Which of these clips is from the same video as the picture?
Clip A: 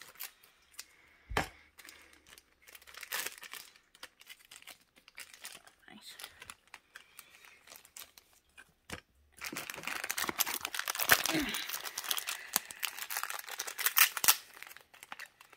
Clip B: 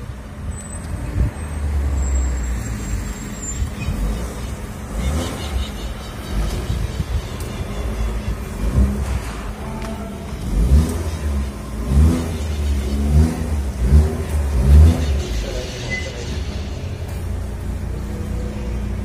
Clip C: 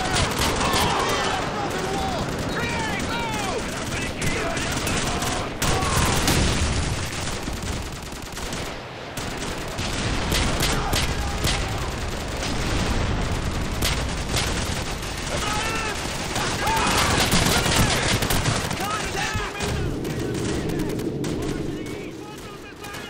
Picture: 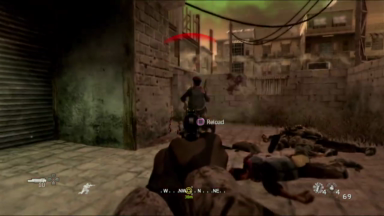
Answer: C